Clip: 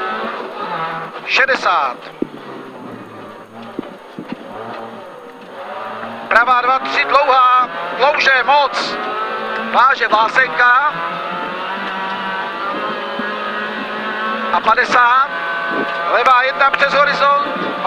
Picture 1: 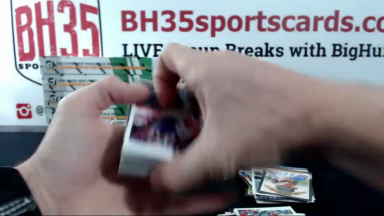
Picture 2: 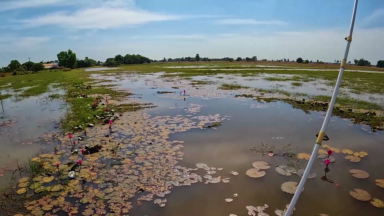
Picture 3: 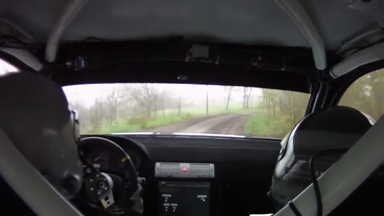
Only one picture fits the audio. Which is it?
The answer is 3